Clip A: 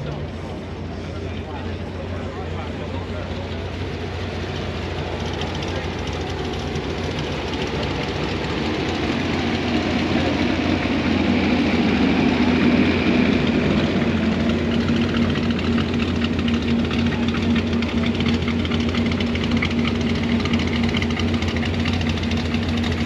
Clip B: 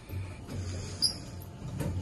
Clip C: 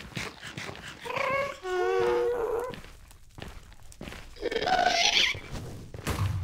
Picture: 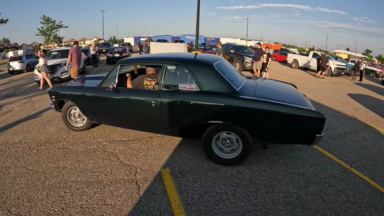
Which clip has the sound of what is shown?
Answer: A